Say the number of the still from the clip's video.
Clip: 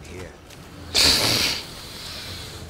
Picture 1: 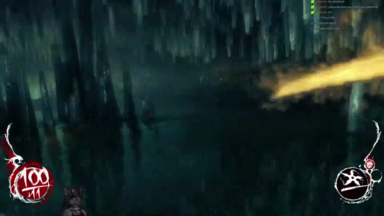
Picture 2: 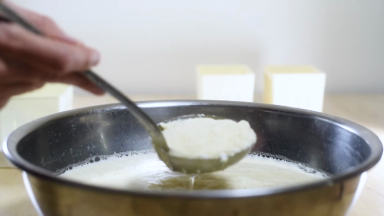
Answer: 1